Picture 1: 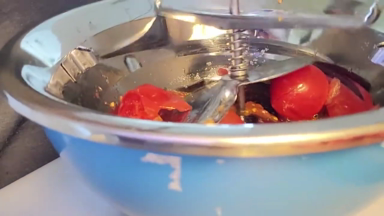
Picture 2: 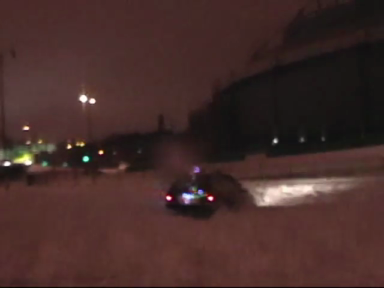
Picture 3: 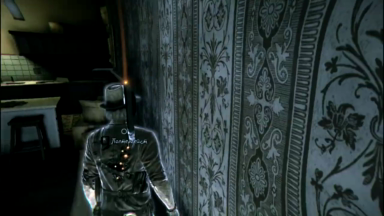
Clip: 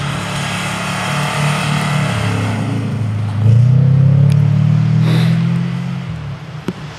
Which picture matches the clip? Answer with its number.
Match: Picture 2